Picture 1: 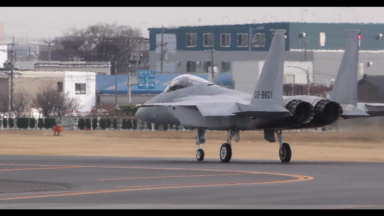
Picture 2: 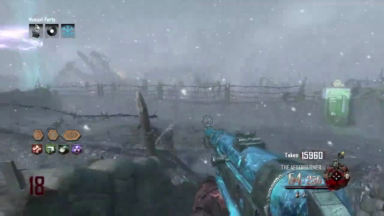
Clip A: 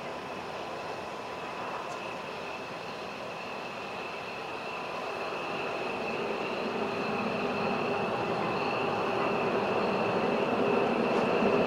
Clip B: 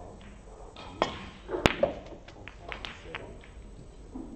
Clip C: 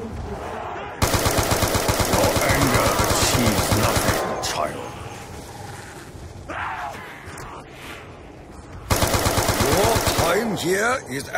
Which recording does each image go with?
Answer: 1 A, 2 C